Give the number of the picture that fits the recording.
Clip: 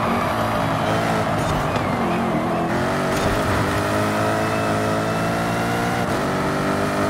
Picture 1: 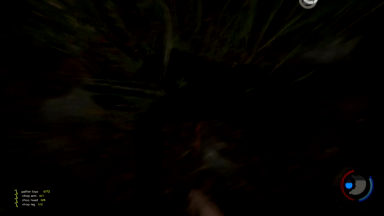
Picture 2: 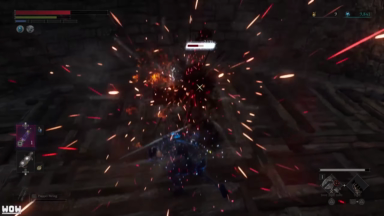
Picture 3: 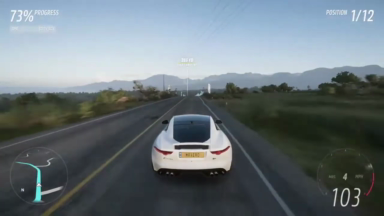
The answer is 3